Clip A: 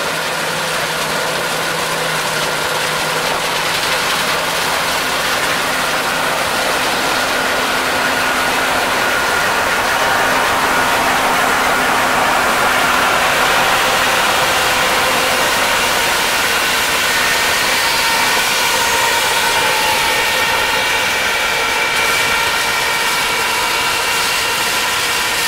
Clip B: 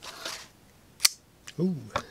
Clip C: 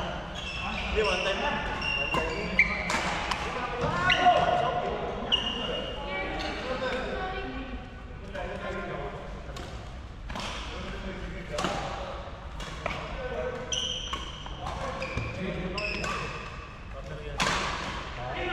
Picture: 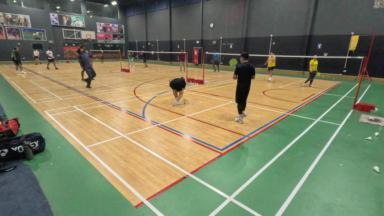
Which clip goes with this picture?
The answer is C